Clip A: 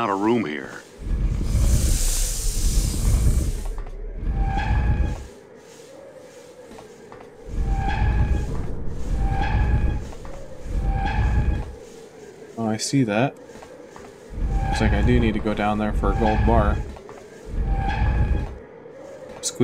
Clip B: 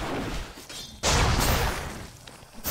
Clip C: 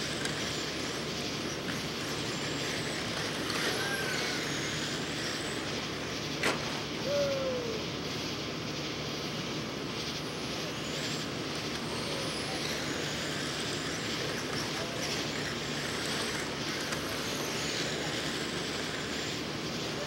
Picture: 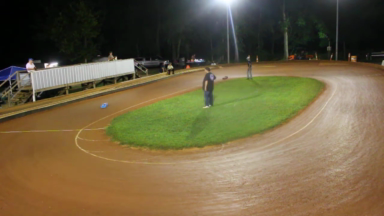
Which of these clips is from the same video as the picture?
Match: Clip C